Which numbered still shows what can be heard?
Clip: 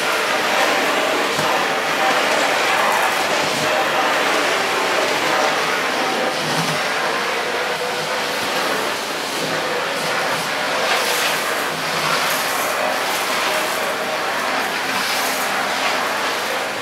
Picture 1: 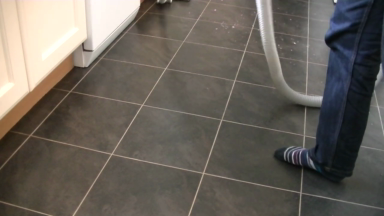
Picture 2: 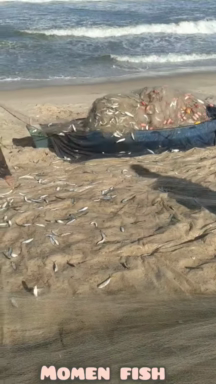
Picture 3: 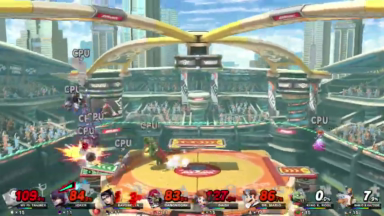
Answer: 1